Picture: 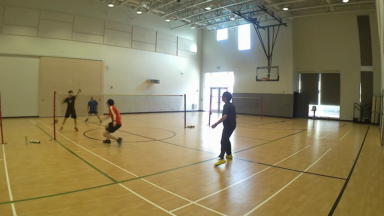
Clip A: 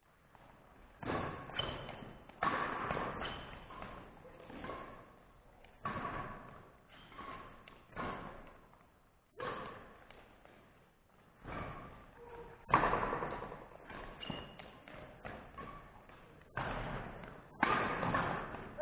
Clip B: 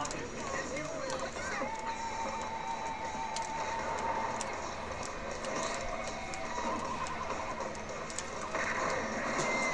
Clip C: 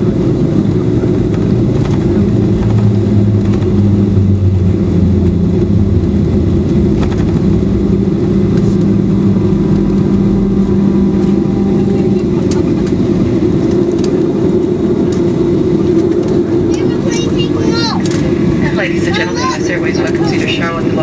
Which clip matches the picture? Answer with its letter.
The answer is A